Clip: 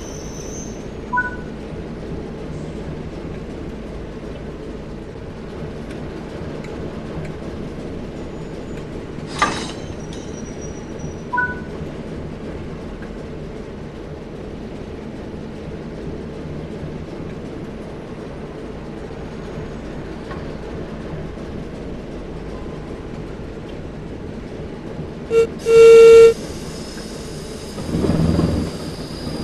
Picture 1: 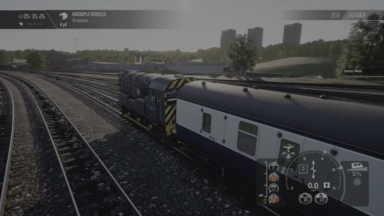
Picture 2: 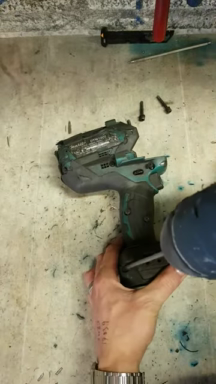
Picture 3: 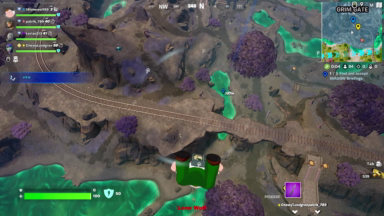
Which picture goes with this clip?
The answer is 1